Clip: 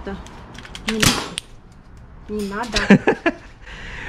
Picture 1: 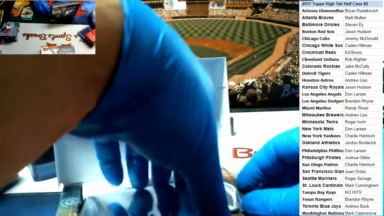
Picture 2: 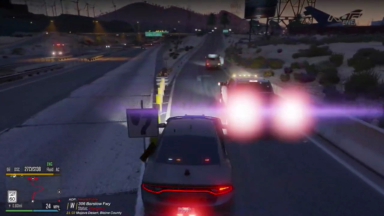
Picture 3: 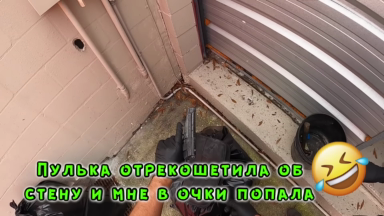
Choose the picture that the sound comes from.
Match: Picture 3